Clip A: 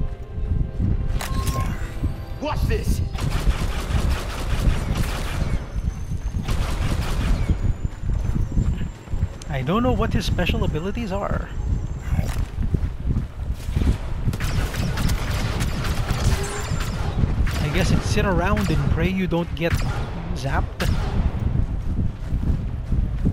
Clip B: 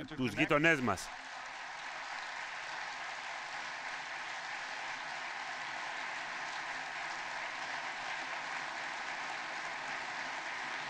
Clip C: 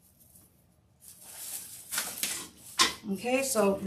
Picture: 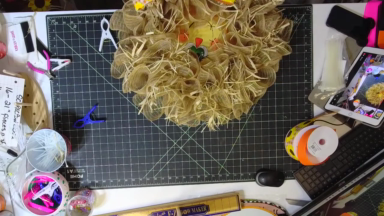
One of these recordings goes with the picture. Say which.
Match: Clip C